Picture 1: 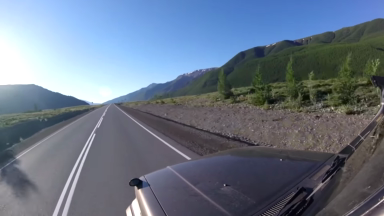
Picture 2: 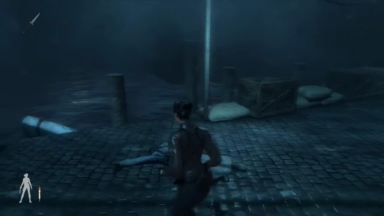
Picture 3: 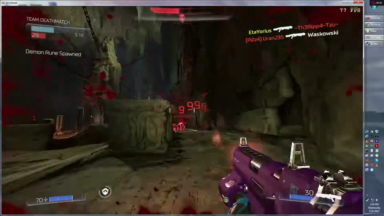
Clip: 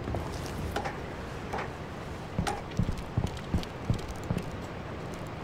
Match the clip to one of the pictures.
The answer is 2